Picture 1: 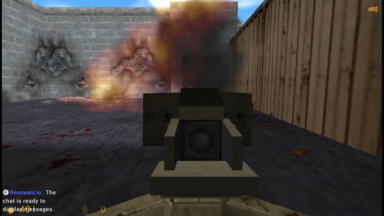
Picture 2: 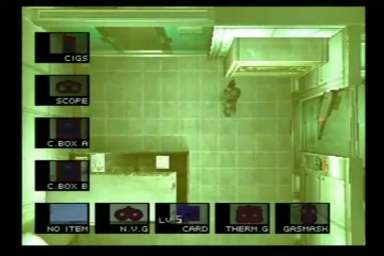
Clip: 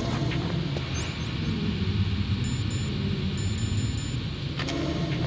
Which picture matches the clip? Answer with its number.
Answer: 2